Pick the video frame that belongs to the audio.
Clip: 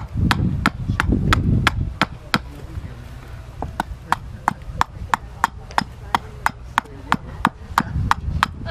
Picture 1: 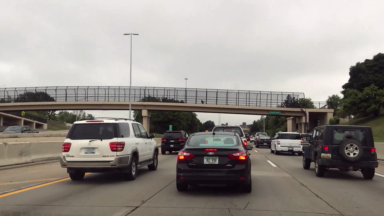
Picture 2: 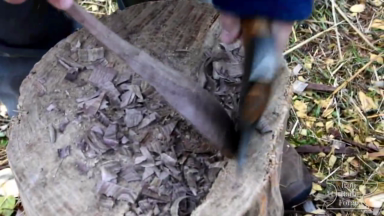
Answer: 2